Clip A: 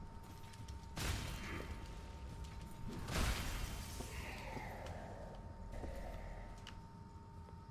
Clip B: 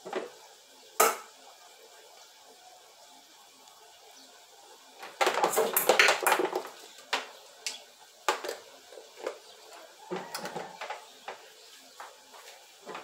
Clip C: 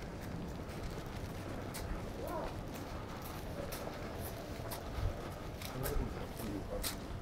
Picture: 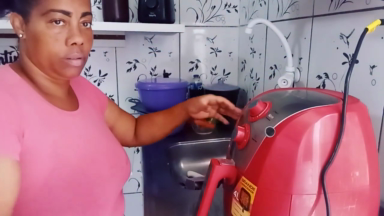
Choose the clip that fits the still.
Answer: B